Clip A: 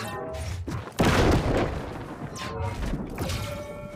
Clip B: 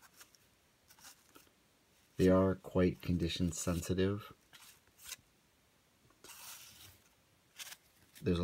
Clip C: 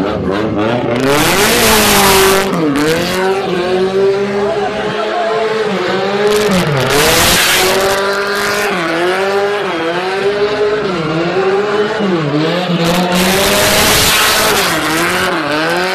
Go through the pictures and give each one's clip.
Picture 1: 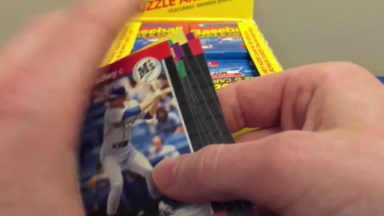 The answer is B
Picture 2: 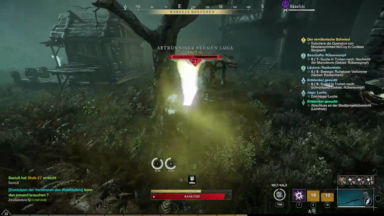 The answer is A